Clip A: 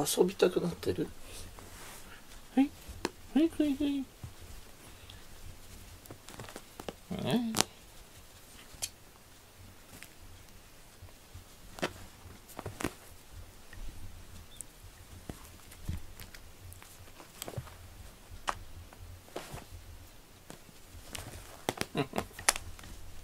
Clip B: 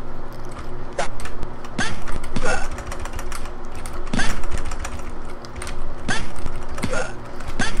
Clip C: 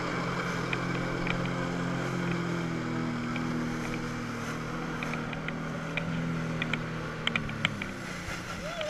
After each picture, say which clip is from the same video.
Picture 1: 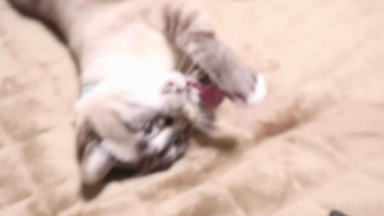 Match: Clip A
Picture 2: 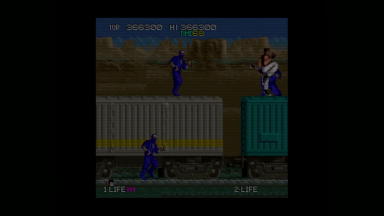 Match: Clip B